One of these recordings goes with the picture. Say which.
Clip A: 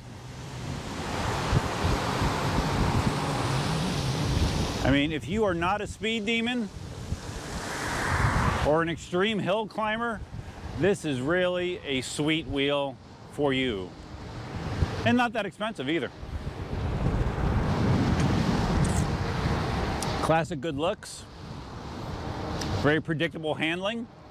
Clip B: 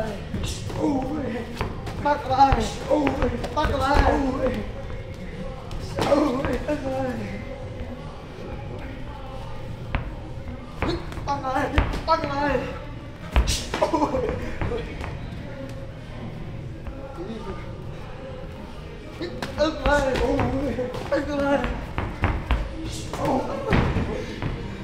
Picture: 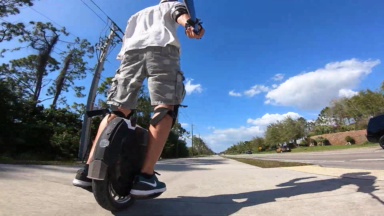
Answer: A